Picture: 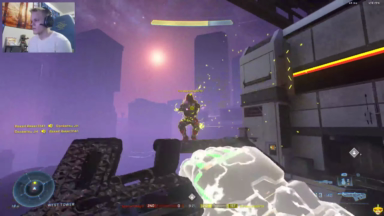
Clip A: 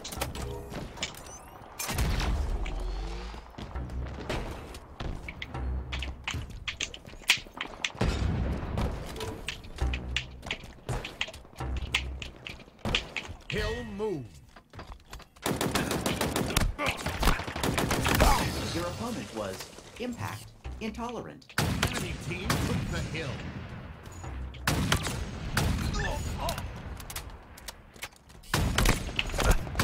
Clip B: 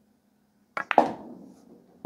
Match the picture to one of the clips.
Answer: A